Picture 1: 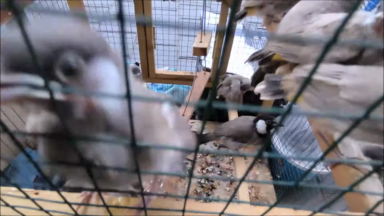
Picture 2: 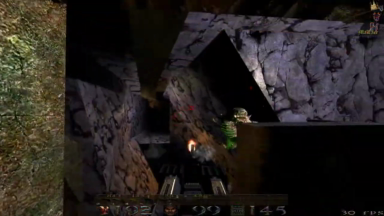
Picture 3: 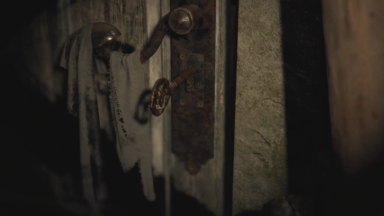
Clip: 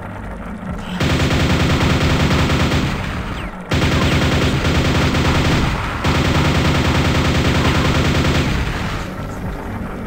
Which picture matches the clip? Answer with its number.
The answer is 2